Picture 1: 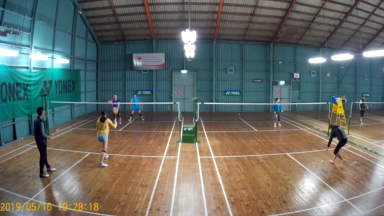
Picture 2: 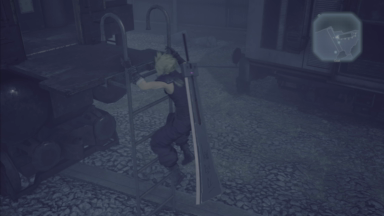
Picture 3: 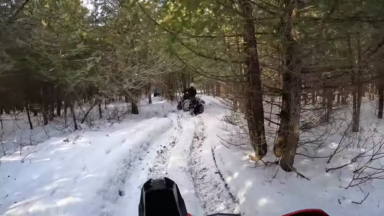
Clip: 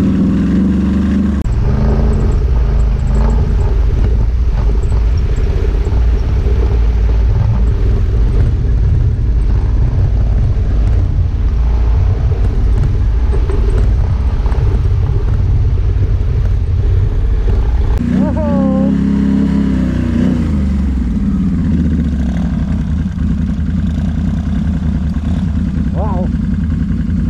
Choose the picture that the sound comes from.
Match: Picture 3